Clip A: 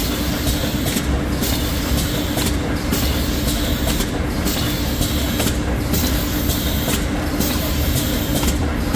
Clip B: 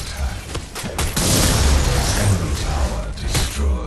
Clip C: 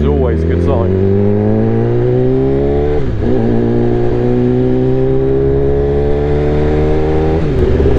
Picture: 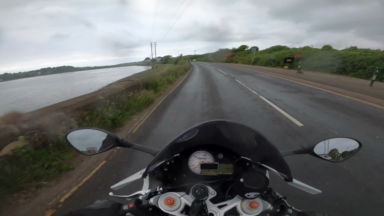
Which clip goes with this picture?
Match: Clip C